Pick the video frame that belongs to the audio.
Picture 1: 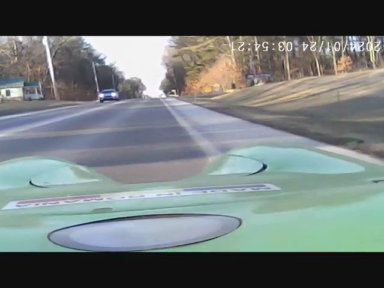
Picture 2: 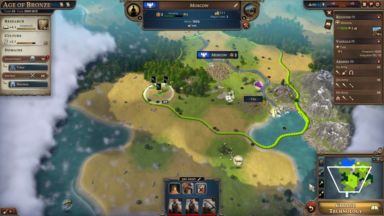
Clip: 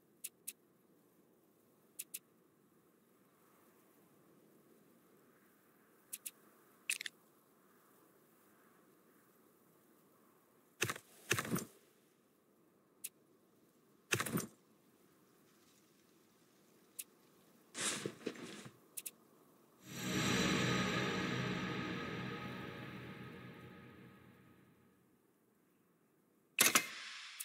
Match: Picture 2